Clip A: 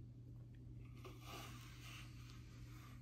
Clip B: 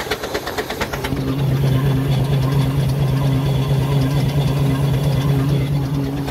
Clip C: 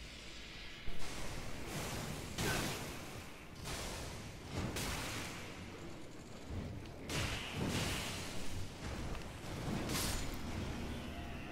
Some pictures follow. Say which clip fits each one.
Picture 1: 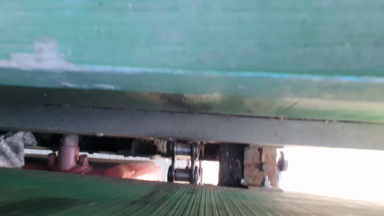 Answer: B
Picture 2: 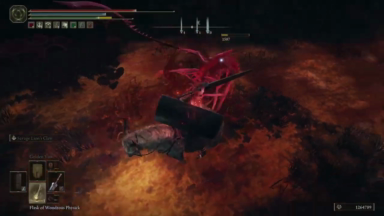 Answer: C